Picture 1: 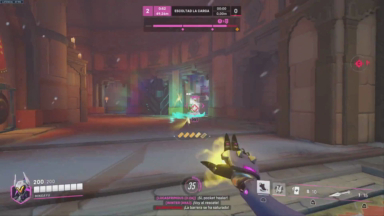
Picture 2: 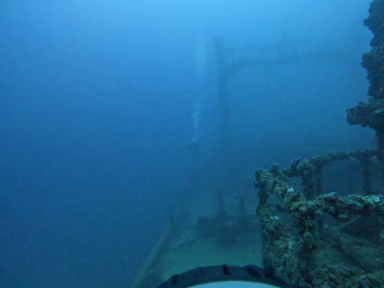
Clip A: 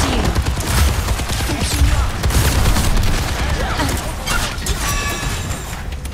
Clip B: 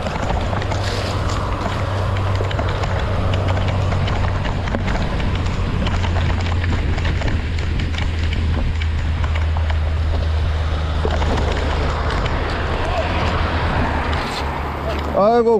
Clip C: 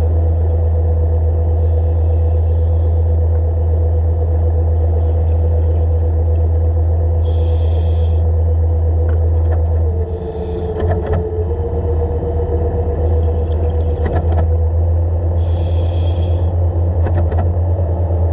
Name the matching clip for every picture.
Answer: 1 A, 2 C